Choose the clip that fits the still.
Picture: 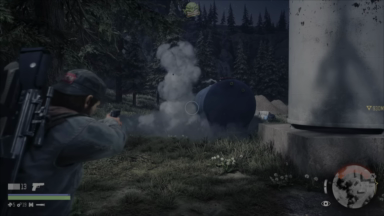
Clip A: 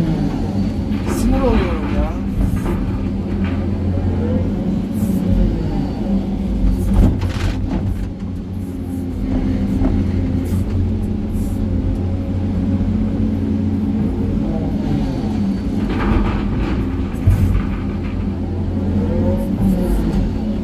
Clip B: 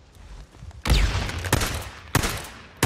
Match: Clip B